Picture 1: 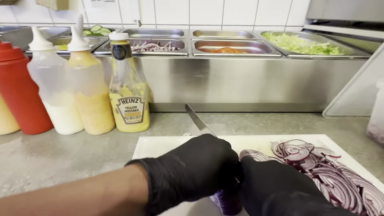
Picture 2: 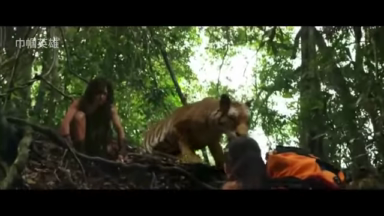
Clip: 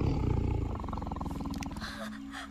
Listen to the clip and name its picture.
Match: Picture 2